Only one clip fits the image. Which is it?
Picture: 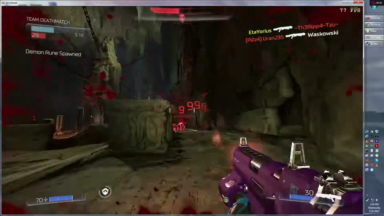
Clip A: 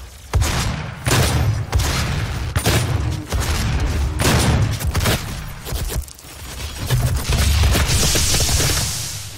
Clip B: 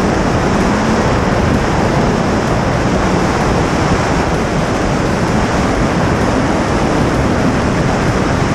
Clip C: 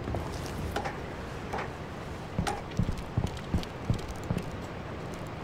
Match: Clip A